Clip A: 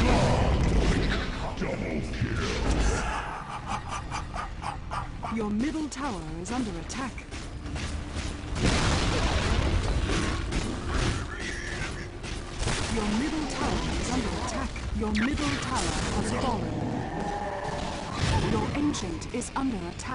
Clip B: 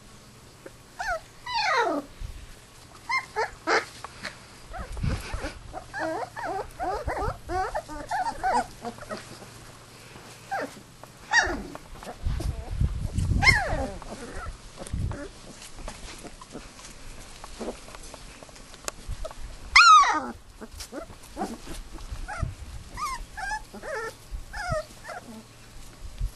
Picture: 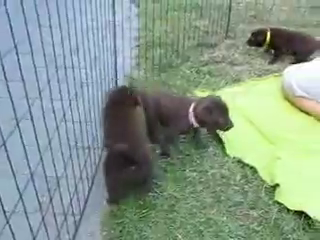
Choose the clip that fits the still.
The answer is B